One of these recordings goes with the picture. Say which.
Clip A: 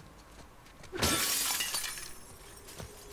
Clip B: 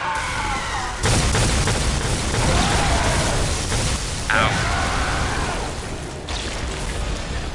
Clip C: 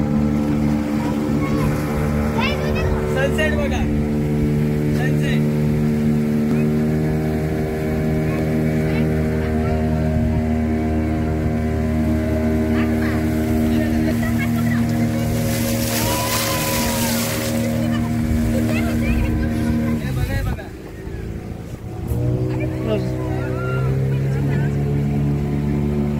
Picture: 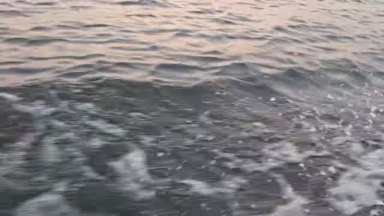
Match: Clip C